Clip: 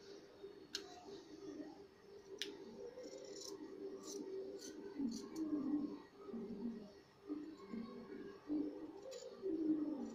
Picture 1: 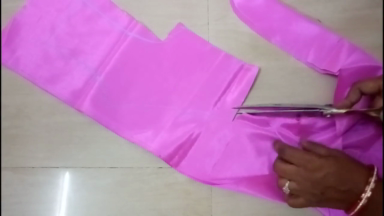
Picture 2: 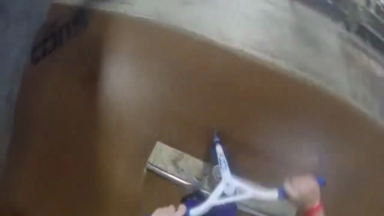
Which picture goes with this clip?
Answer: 1